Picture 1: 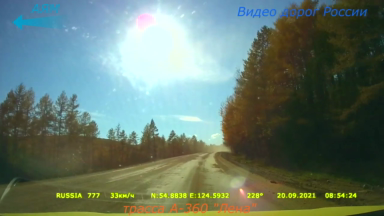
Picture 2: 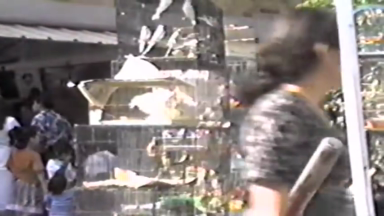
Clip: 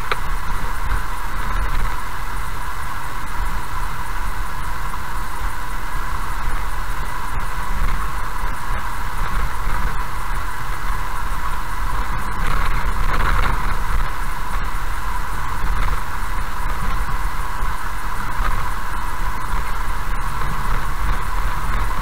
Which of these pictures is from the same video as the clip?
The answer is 1